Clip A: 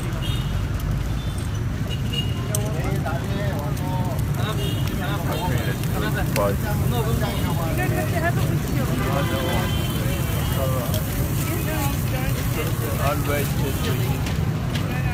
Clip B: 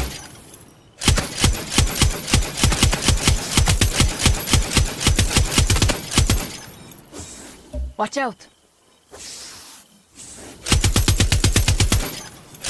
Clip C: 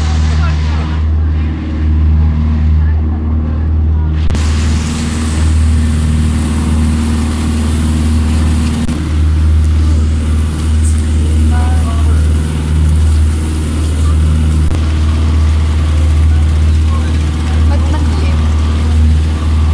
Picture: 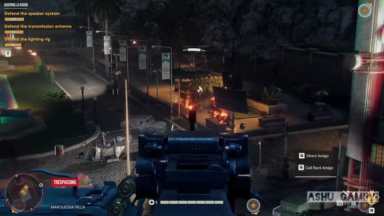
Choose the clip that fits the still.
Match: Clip B